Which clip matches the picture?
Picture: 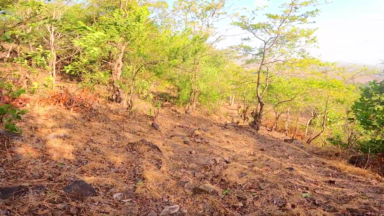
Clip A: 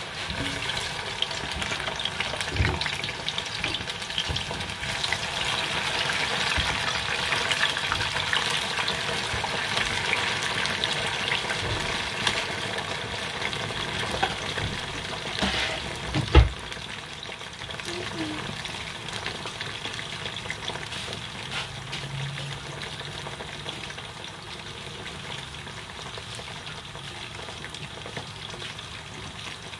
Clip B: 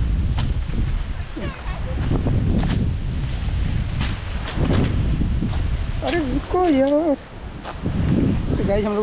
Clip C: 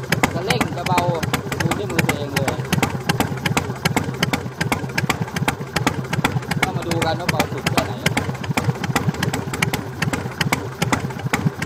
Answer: B